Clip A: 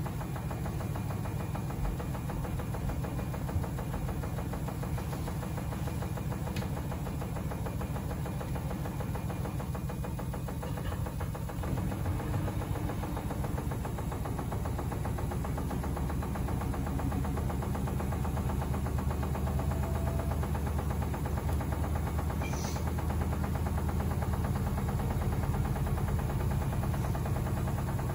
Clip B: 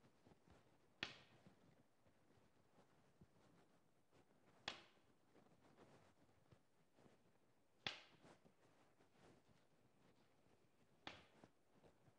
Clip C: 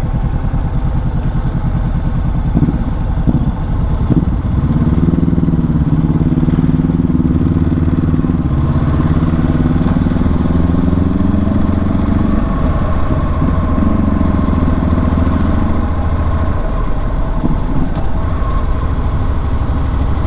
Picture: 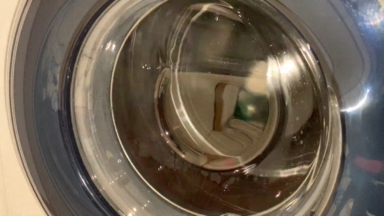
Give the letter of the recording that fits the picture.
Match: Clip A